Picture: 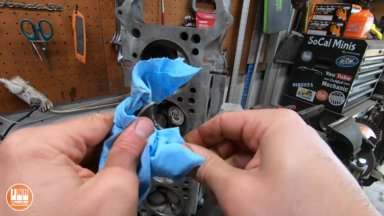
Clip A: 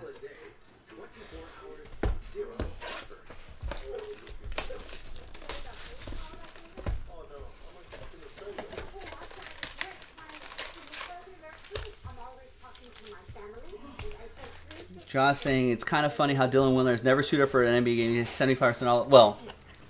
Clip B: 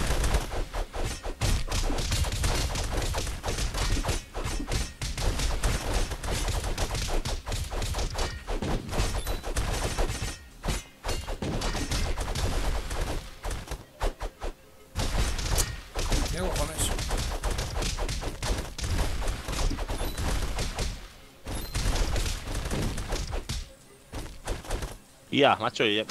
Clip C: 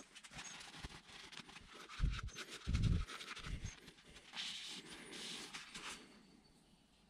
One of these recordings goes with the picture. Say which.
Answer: C